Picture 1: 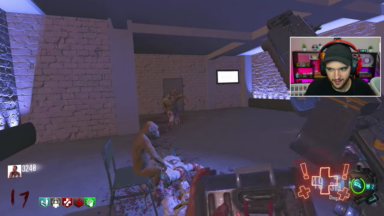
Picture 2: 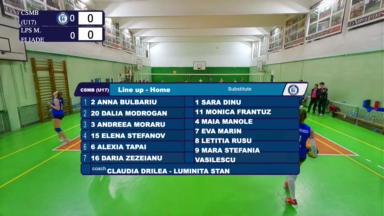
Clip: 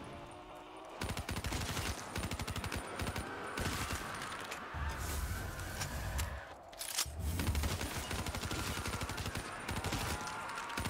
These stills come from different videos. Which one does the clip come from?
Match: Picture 1